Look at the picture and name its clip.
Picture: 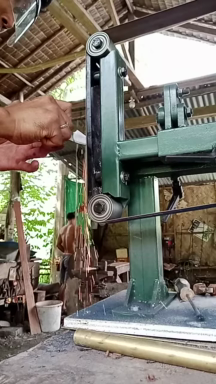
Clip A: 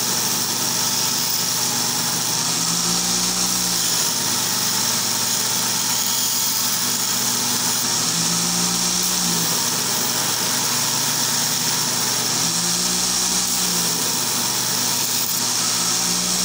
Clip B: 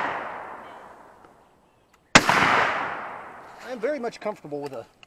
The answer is A